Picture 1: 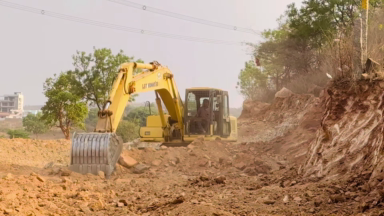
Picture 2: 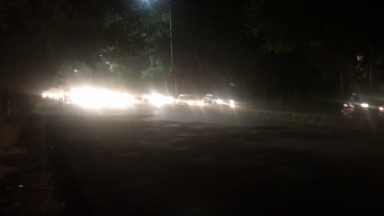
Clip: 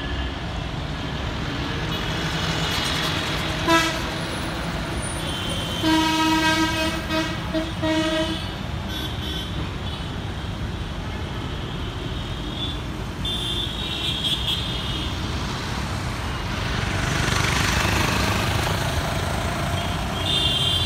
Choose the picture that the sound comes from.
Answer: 2